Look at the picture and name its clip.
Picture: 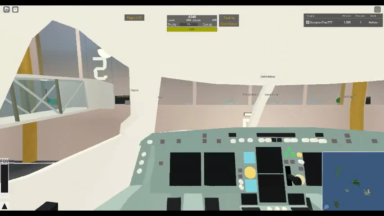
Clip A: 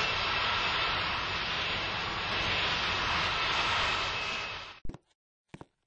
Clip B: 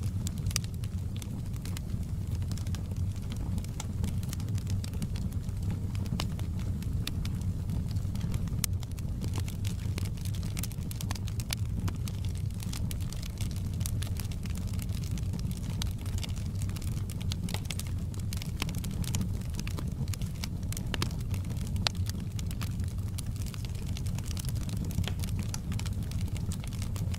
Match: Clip A